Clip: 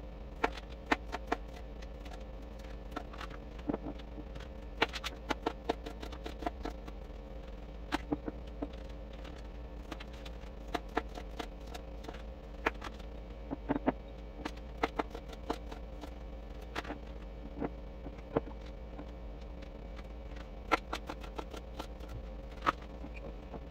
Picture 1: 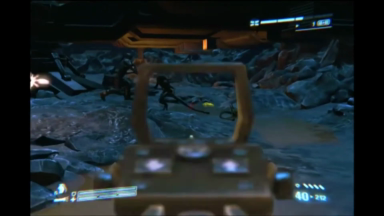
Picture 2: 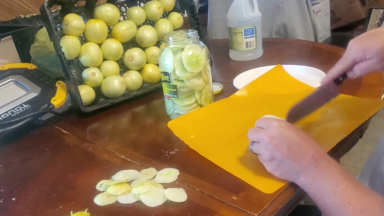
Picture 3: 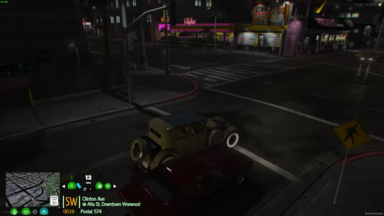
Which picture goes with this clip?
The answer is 2